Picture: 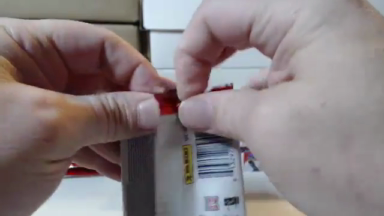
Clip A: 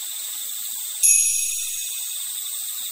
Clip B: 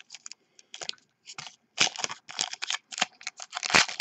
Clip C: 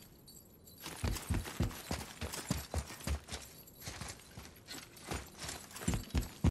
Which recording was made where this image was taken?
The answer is B